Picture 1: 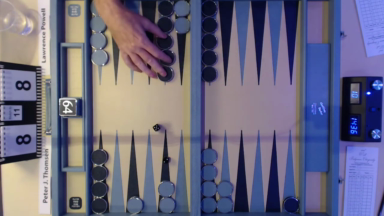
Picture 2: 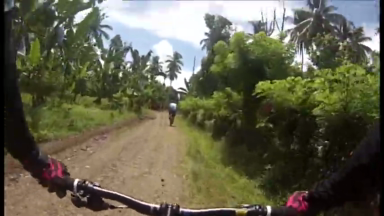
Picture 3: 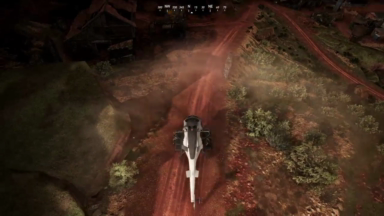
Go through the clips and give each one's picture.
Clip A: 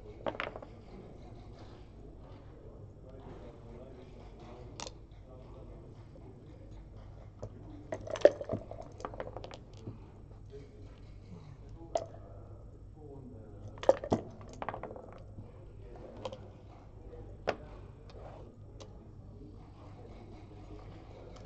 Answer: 1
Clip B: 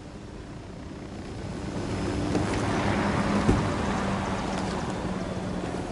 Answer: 3